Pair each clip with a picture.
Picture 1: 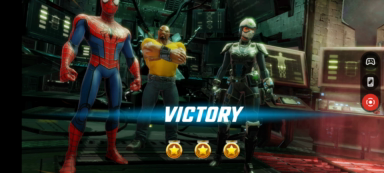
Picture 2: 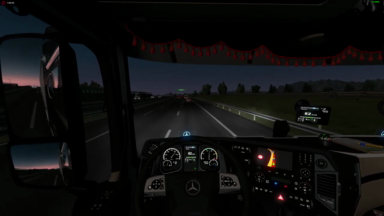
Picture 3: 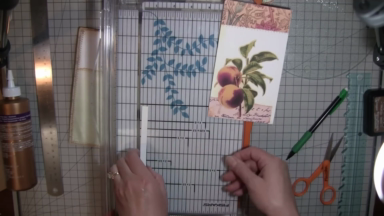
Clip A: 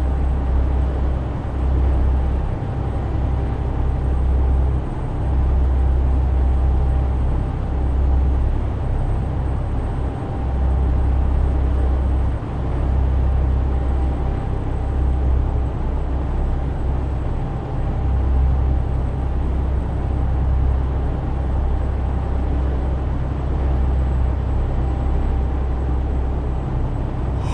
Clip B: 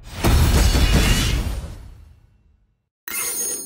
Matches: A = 2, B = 1